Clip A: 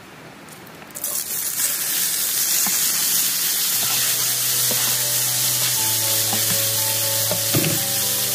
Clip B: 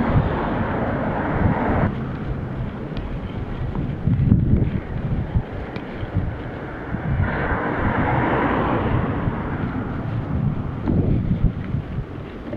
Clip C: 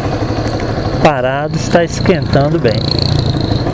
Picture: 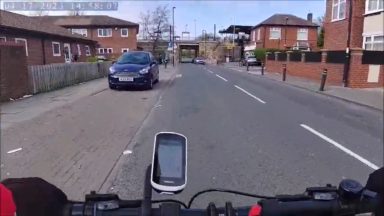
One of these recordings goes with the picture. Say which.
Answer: B